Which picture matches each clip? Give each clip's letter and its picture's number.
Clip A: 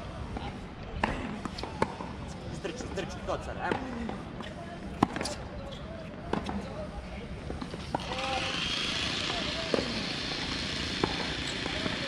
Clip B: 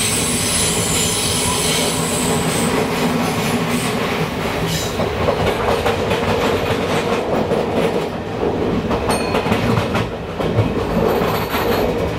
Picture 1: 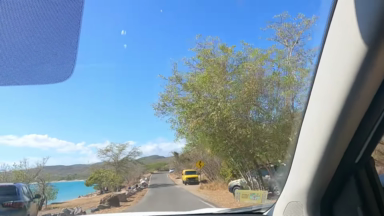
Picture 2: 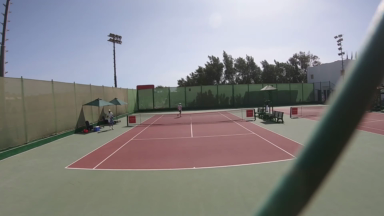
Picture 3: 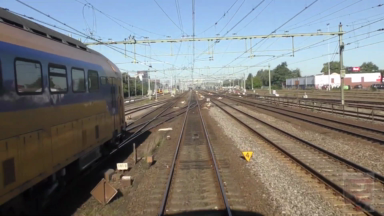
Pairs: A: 2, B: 3